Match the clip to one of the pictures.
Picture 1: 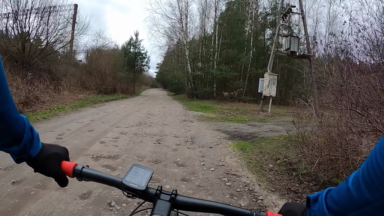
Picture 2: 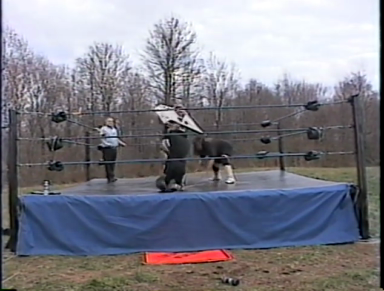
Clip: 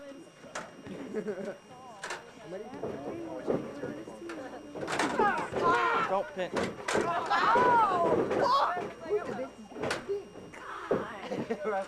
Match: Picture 2